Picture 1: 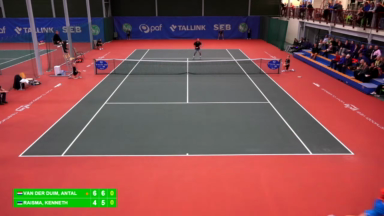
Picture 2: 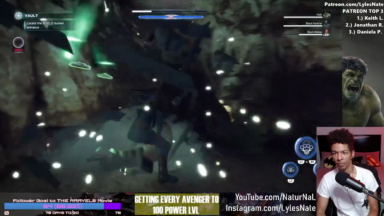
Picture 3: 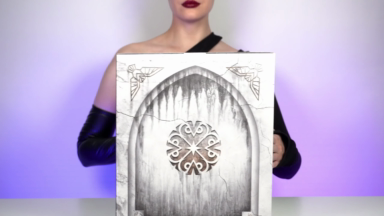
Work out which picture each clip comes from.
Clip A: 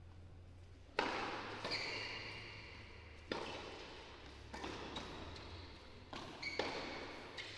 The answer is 1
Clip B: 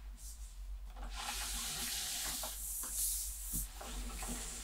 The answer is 3